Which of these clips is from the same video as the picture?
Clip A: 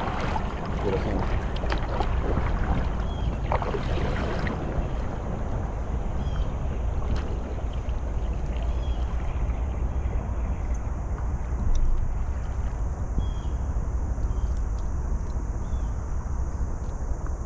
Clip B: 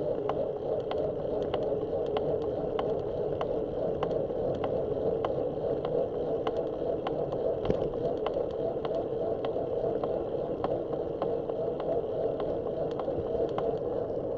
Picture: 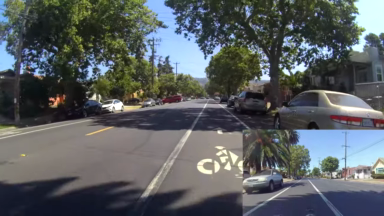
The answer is B